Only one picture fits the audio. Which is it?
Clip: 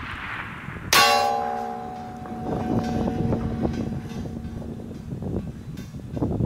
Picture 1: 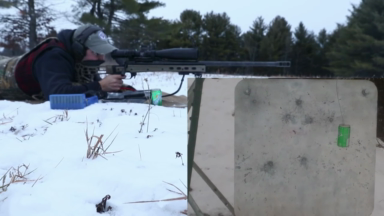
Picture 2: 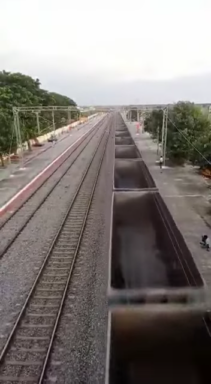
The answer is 1